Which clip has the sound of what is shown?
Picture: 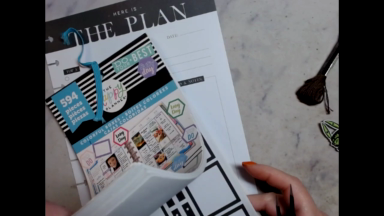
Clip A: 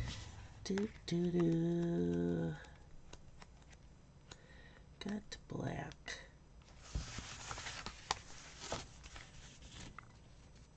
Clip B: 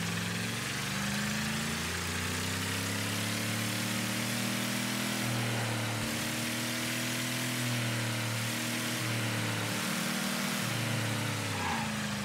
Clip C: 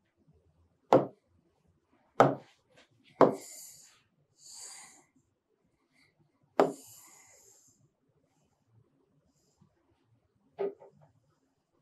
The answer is A